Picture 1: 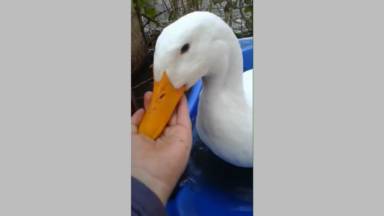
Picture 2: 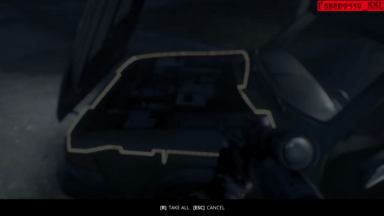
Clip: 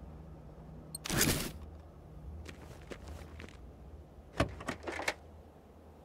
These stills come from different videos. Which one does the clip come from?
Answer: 2